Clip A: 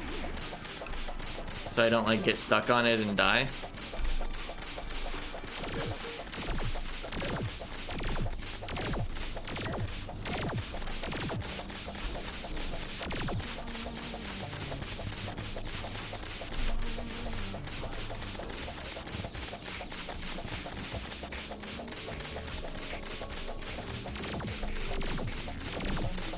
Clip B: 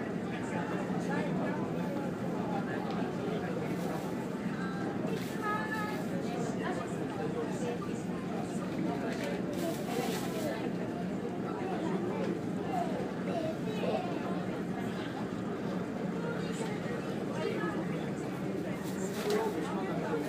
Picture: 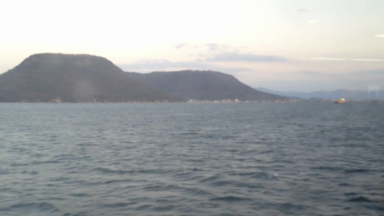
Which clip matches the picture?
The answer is B